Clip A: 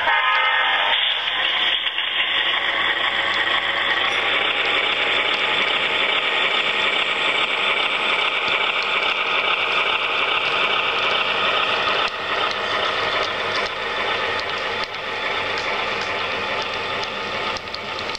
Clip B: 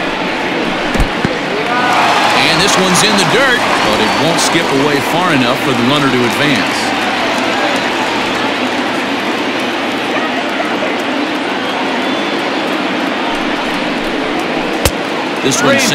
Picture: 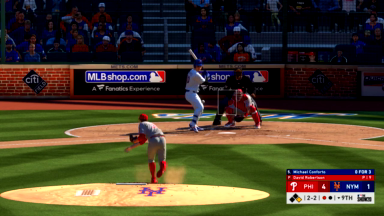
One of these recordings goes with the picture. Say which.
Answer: B